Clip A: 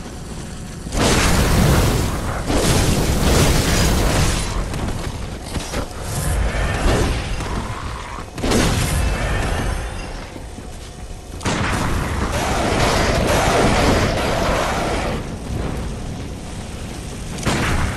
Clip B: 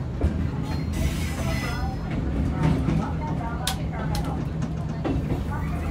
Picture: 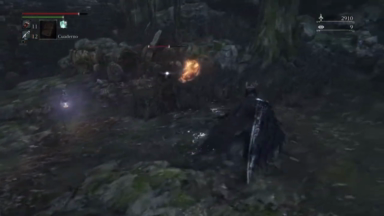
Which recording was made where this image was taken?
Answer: A